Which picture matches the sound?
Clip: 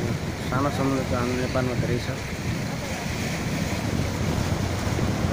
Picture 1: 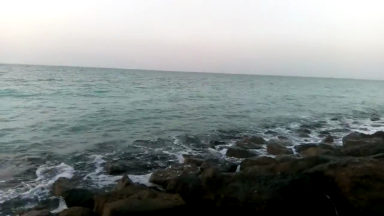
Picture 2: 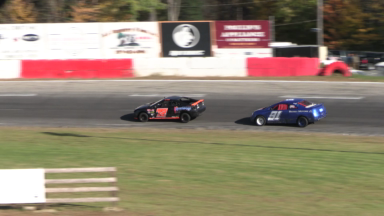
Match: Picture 1